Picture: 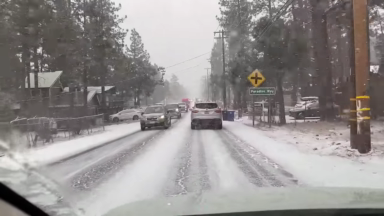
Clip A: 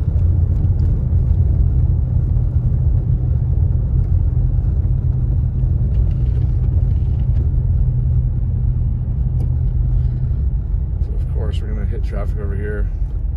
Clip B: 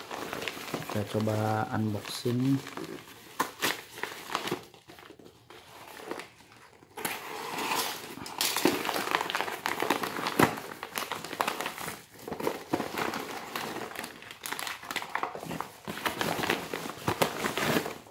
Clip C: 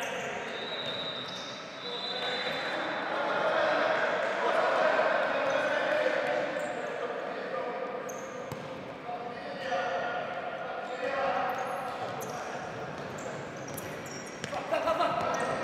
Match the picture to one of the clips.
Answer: A